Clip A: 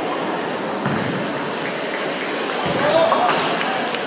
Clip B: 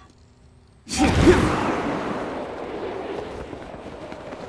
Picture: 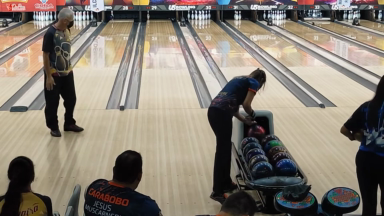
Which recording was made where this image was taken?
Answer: A